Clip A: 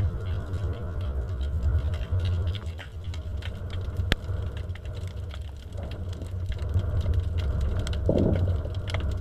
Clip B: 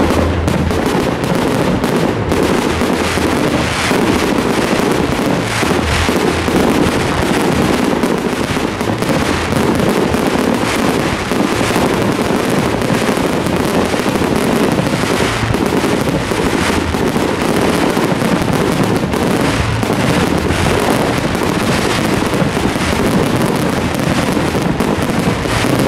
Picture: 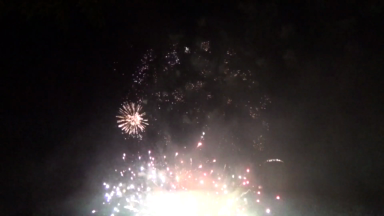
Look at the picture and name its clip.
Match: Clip B